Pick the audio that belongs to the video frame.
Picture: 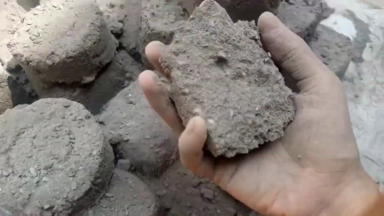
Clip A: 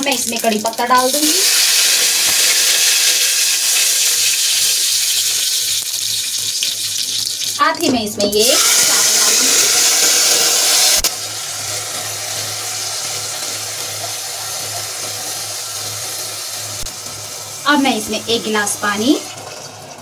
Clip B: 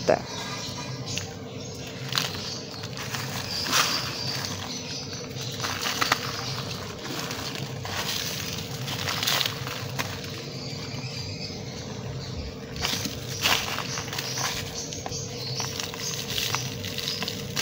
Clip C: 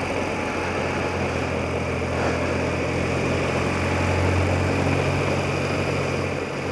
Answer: B